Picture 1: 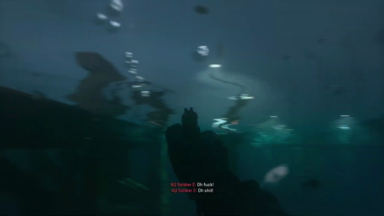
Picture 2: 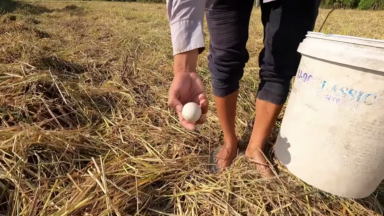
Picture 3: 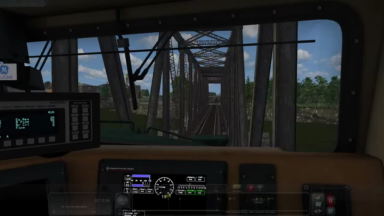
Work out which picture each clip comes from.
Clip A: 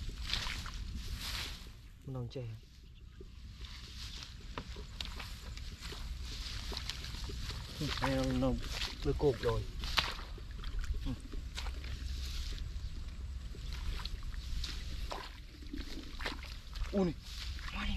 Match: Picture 2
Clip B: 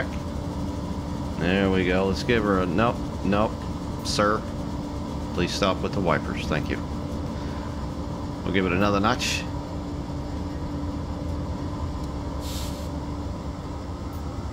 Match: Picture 3